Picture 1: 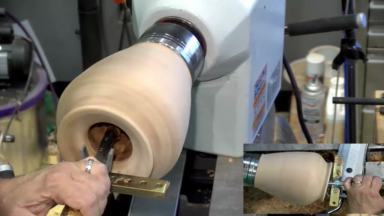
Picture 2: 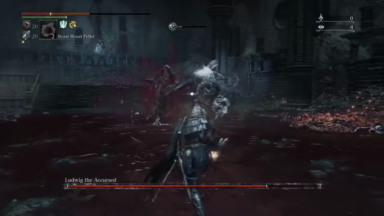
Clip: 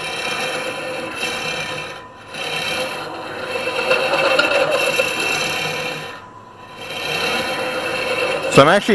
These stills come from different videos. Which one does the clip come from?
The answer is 1